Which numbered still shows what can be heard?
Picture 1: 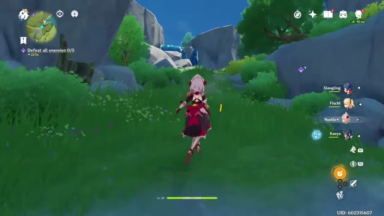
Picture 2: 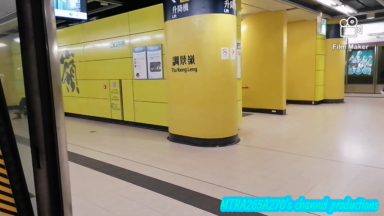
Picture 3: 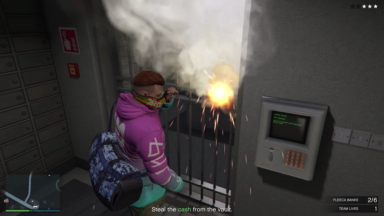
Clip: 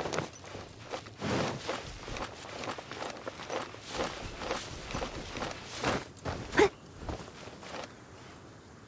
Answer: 1